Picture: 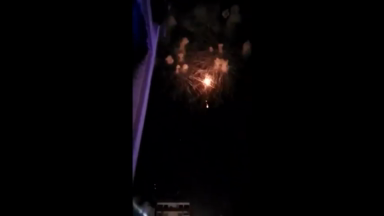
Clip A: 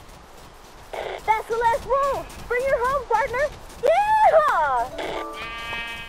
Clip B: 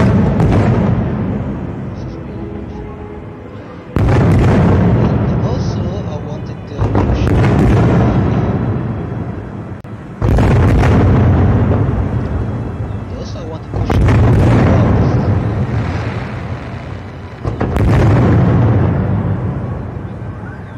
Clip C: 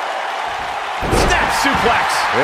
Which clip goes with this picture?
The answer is B